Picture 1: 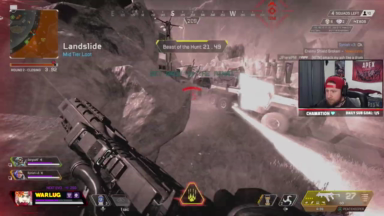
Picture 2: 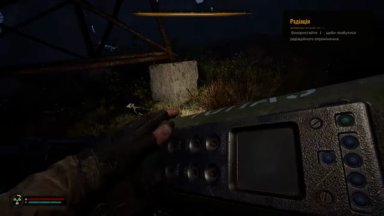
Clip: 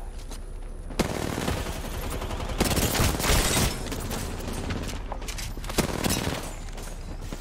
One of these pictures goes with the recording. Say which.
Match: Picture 1